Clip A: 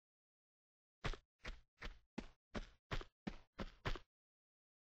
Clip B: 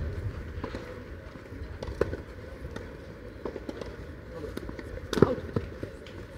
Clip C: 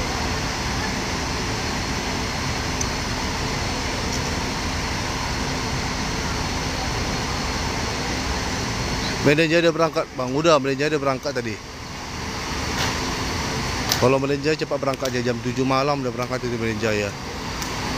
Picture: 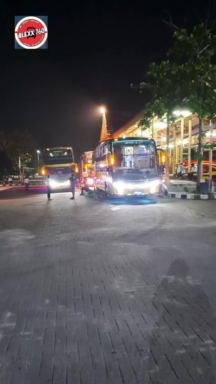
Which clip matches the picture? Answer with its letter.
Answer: C